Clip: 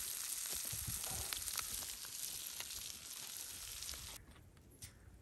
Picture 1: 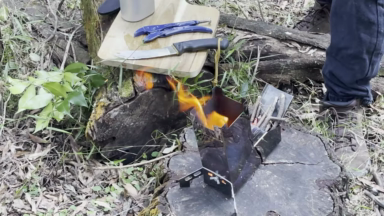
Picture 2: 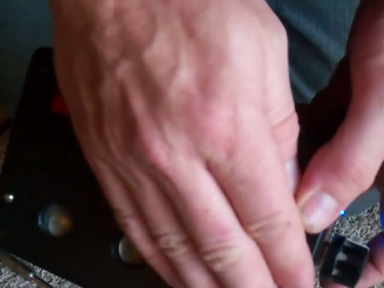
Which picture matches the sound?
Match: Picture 1